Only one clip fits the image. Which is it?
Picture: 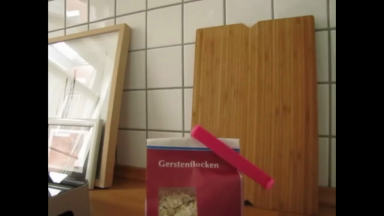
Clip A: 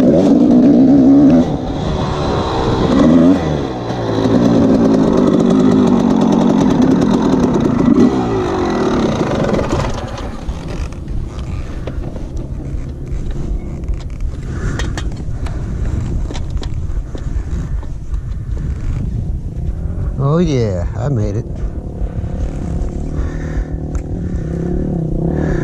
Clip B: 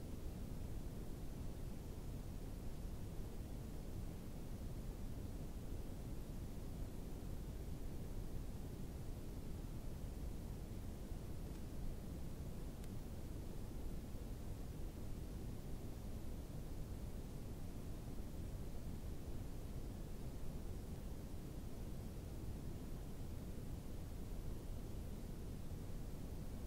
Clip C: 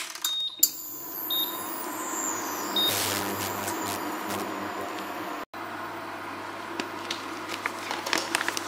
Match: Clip C